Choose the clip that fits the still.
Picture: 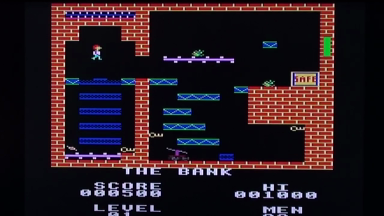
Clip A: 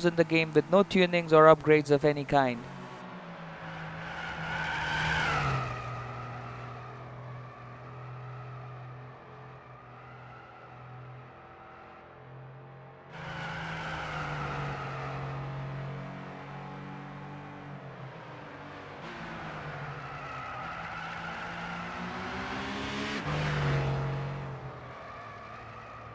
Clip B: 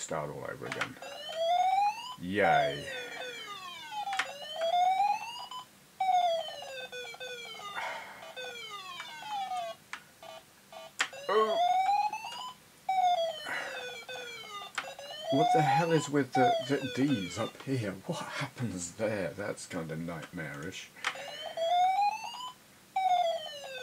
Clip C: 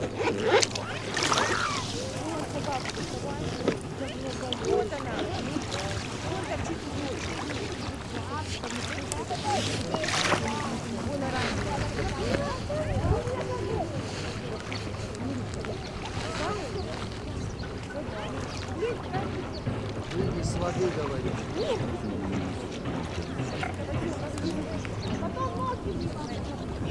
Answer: B